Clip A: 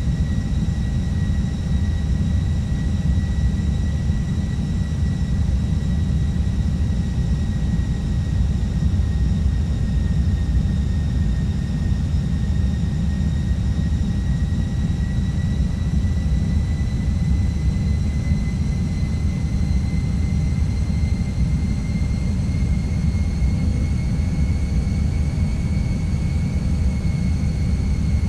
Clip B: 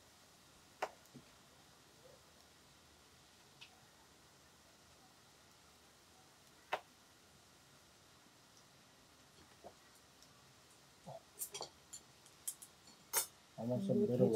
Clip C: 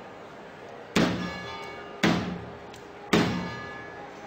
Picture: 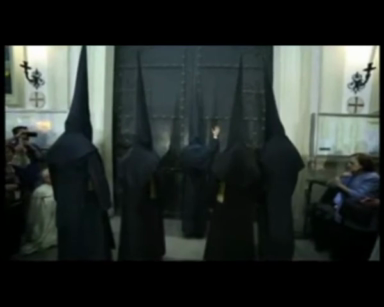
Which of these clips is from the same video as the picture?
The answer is C